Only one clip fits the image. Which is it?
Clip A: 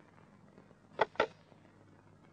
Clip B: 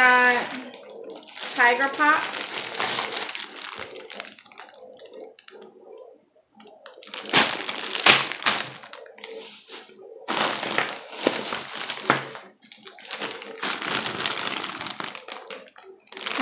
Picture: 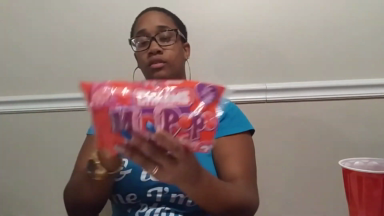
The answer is B